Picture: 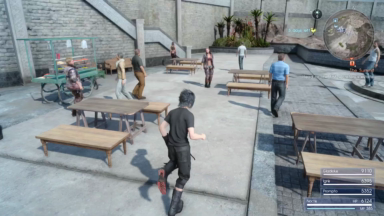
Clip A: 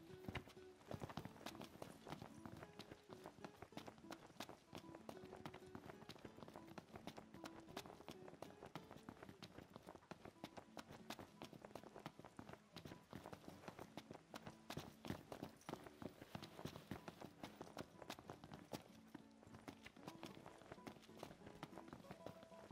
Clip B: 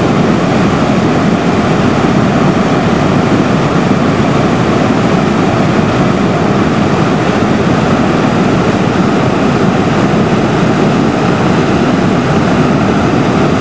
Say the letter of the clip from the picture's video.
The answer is A